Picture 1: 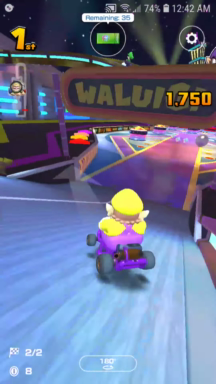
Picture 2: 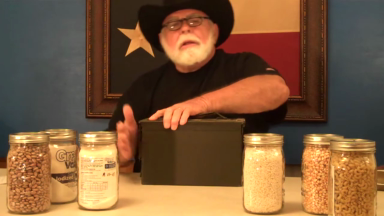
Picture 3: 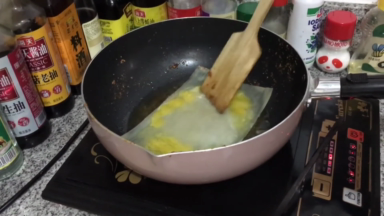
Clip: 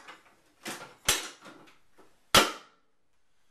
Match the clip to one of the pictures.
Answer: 2